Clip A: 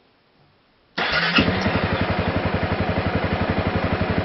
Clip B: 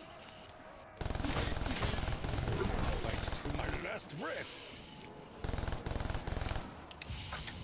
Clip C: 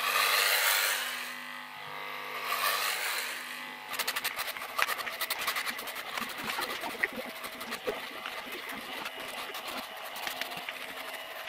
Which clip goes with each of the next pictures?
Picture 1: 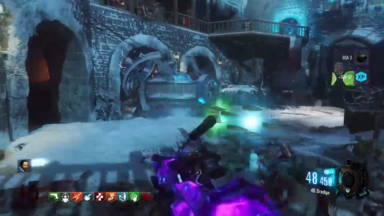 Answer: B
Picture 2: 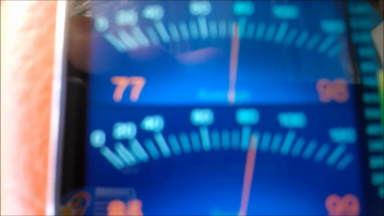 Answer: A